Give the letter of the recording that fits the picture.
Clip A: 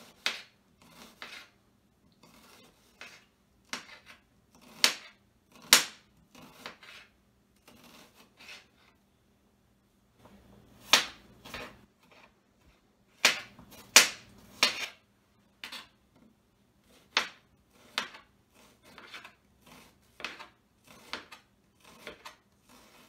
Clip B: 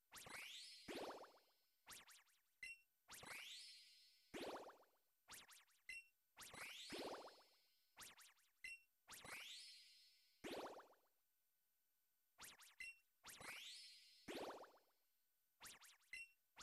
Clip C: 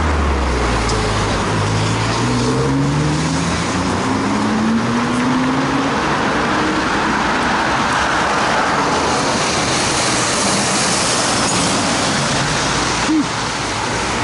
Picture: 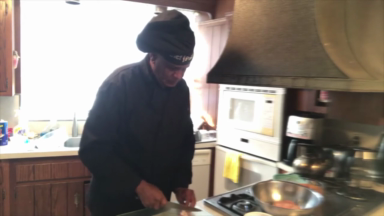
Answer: A